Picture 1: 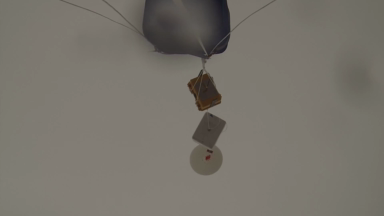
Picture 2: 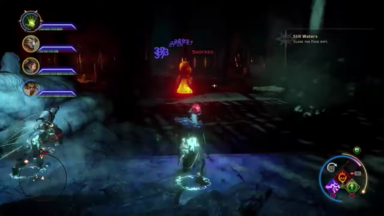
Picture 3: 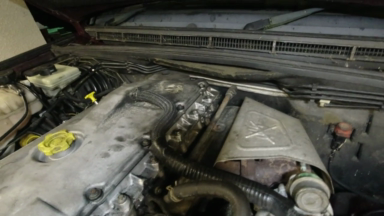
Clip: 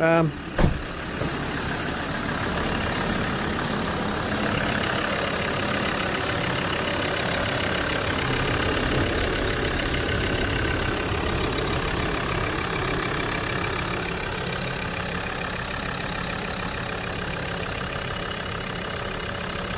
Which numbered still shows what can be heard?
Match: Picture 3